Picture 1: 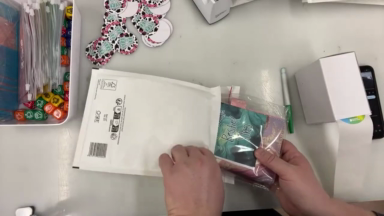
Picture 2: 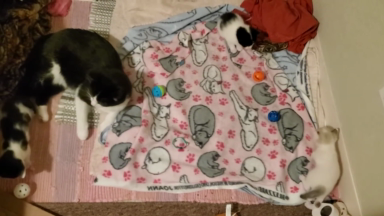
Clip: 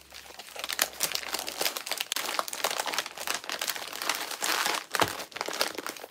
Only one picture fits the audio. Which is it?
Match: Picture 1